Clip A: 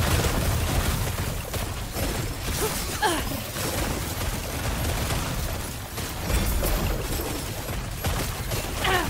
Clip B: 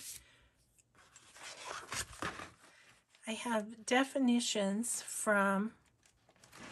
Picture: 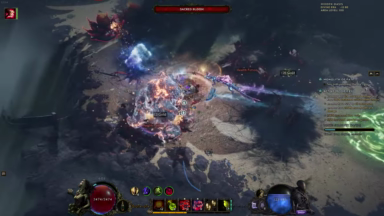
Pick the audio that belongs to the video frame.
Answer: A